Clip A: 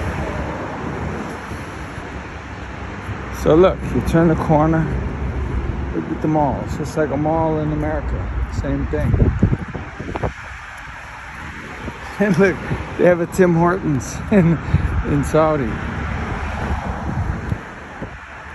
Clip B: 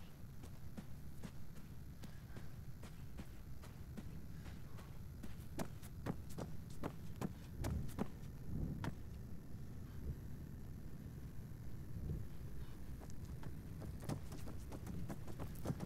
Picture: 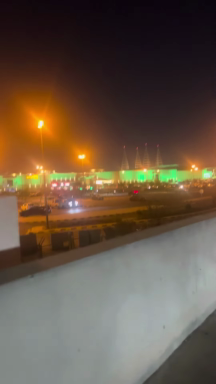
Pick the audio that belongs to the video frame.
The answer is A